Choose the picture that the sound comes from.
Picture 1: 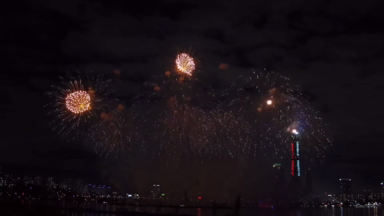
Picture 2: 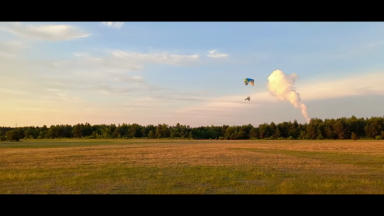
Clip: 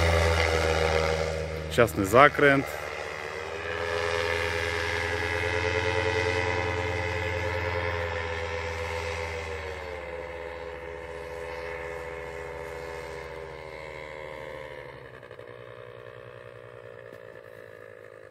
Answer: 2